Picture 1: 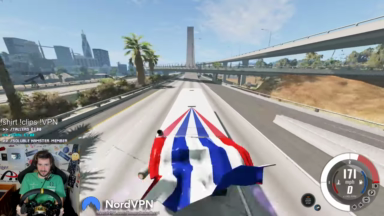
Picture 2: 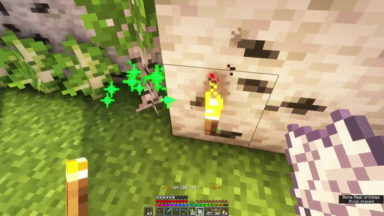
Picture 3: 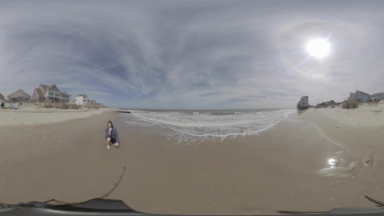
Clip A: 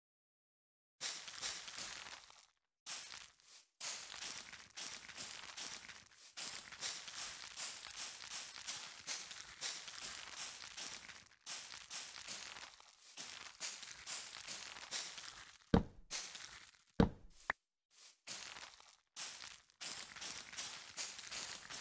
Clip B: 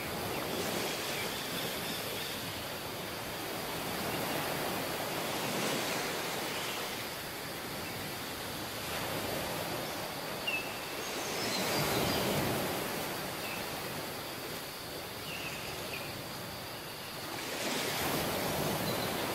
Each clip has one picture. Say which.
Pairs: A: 2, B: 3